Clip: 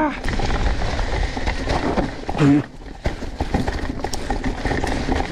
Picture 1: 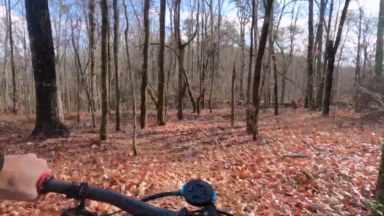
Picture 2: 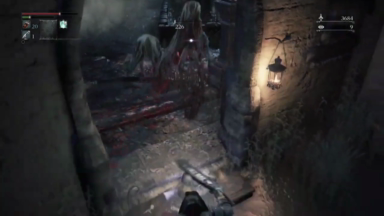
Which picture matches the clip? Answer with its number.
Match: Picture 1